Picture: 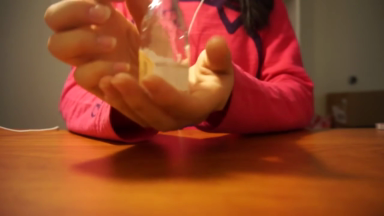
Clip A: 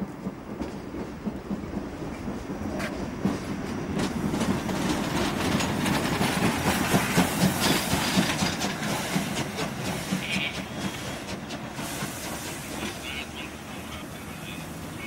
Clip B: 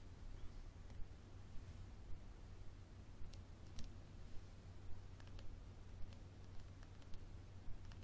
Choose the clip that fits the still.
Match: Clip B